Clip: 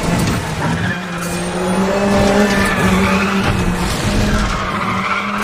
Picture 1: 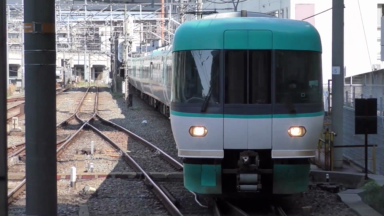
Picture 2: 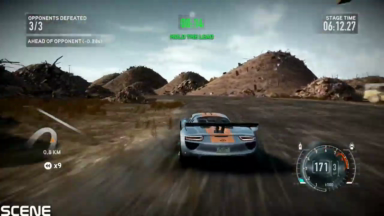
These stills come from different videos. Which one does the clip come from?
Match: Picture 2